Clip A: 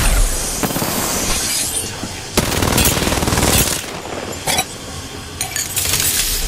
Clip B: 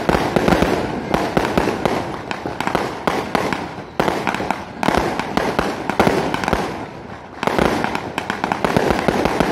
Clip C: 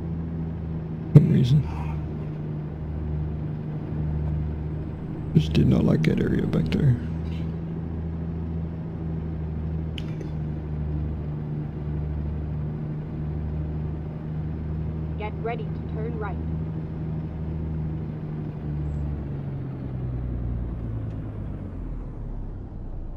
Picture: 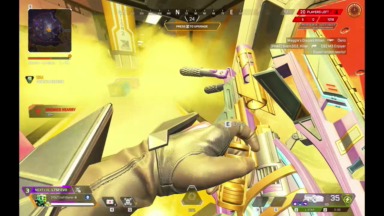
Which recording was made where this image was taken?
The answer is A